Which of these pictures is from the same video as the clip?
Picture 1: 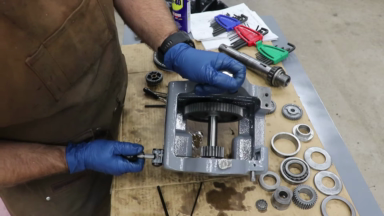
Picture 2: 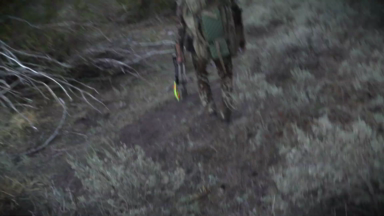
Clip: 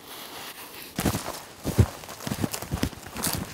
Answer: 2